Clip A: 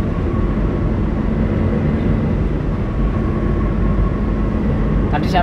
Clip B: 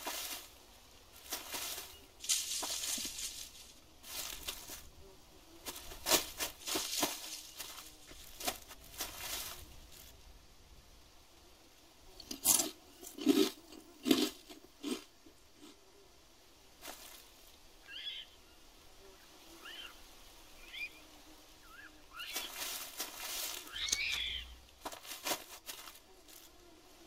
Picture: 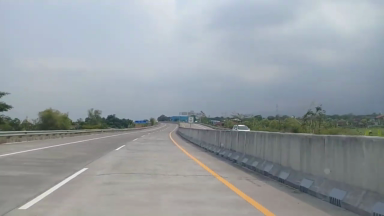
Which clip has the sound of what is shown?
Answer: A